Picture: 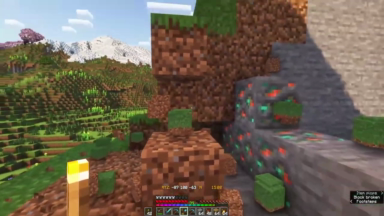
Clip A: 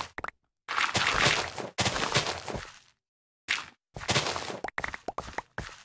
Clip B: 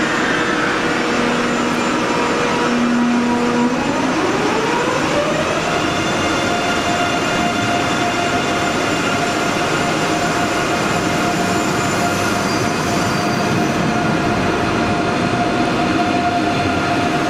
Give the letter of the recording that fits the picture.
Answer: A